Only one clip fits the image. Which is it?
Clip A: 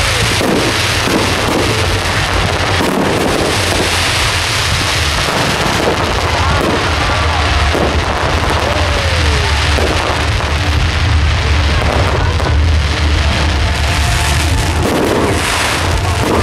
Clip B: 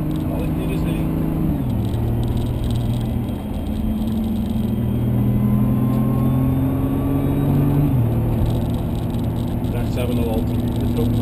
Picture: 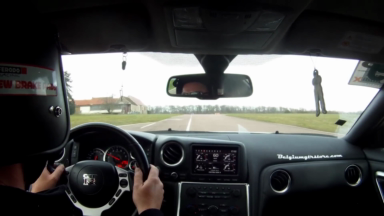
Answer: B